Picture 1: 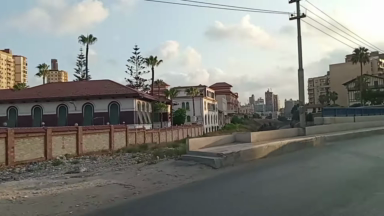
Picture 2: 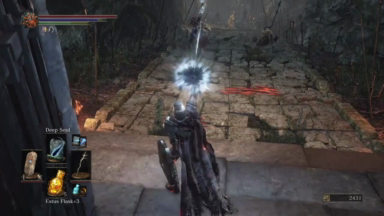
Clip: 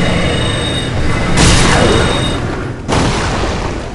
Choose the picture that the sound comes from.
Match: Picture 2